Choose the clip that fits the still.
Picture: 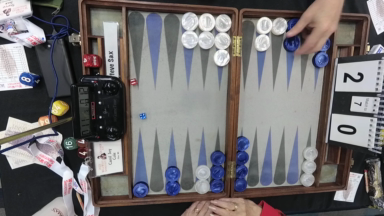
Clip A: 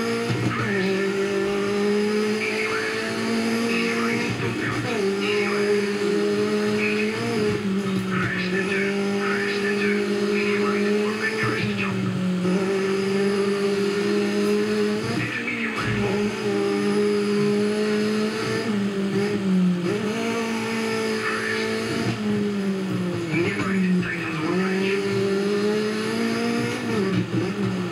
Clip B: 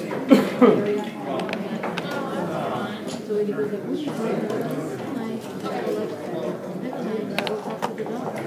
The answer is B